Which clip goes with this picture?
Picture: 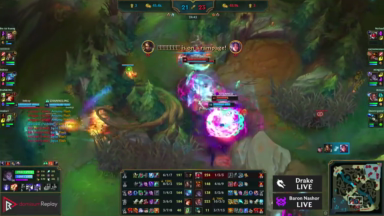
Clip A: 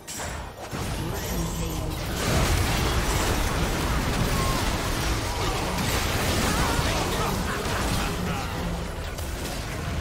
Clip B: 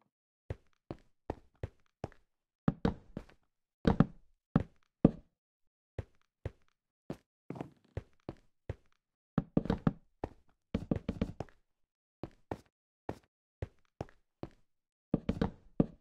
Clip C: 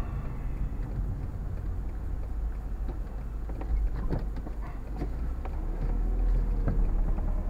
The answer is A